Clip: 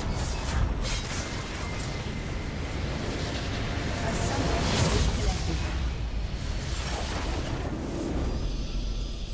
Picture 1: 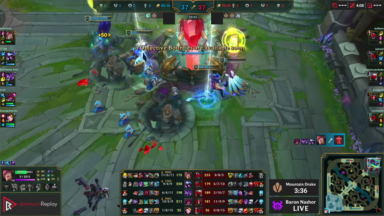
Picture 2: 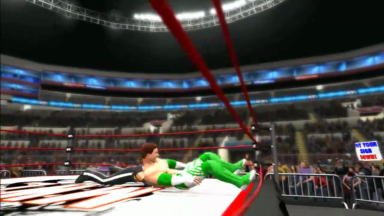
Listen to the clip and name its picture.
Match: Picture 1